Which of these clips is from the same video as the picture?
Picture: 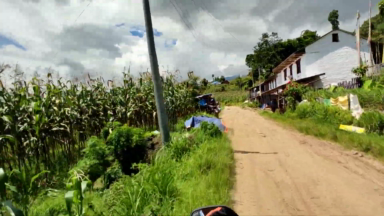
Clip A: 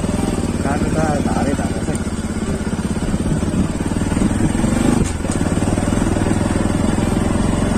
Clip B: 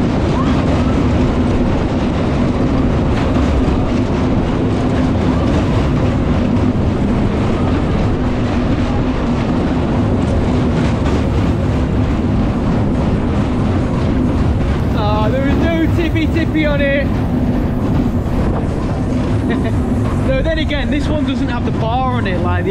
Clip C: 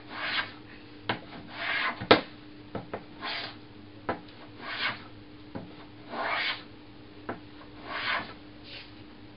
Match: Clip A